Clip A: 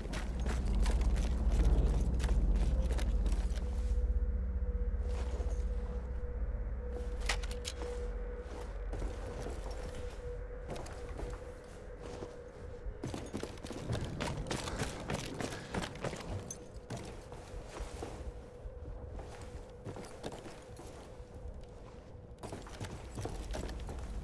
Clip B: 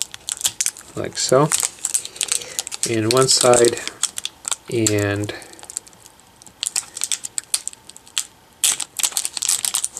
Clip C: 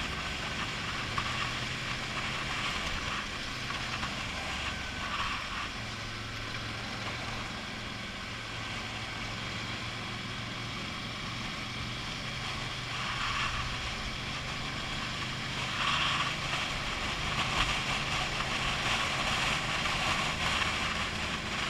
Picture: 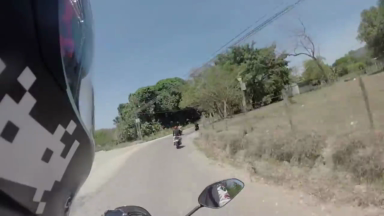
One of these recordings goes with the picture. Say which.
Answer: C